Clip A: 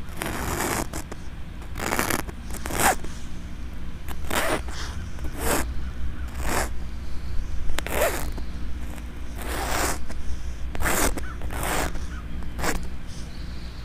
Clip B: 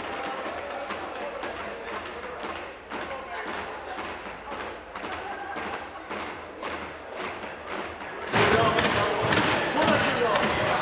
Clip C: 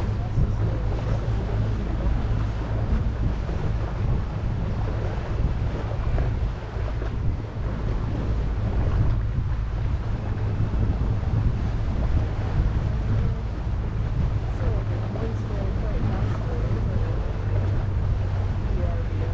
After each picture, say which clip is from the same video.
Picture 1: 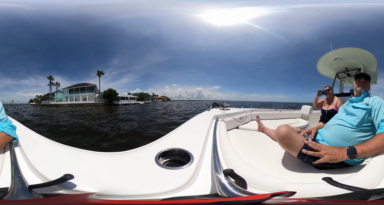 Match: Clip C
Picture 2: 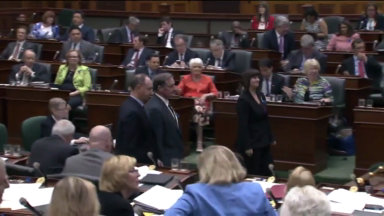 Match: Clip B